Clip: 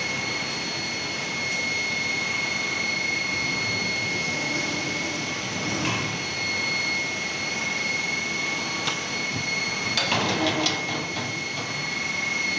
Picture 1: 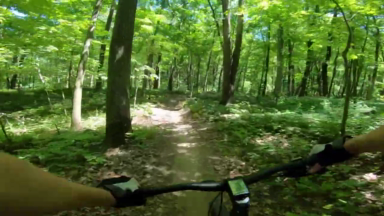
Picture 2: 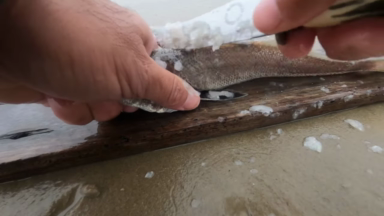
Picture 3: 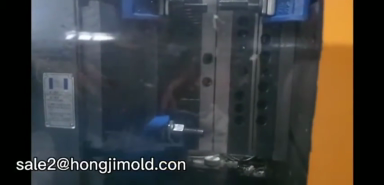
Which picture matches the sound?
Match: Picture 3